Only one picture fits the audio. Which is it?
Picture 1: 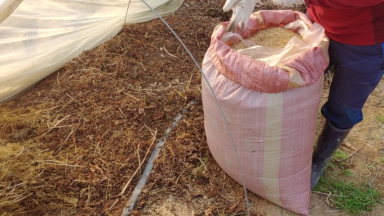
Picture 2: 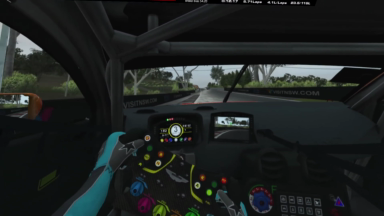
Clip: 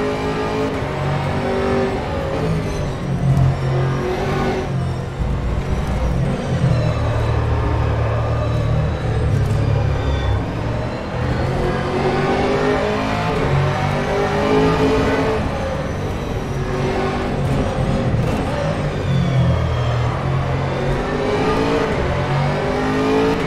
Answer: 2